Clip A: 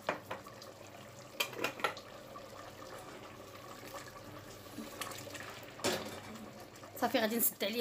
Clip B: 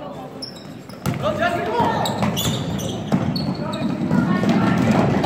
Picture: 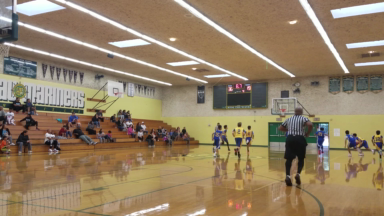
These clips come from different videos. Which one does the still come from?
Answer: B